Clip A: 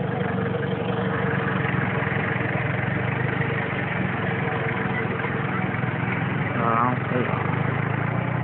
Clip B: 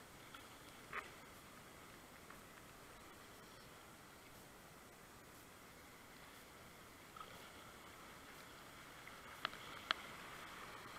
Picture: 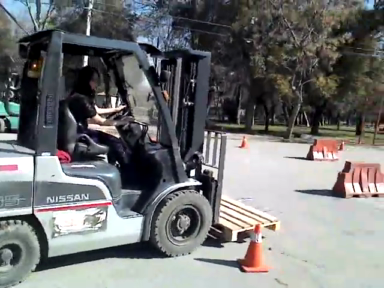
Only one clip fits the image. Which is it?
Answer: A